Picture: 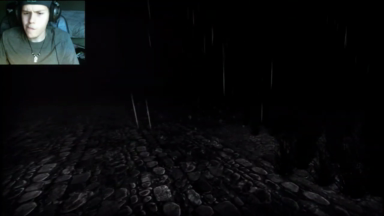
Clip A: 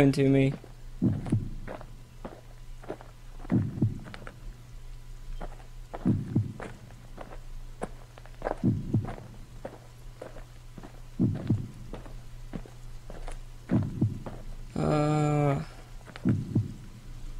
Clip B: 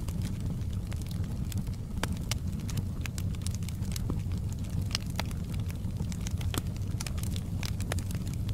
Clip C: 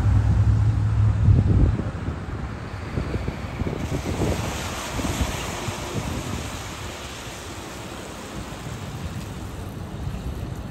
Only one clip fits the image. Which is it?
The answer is A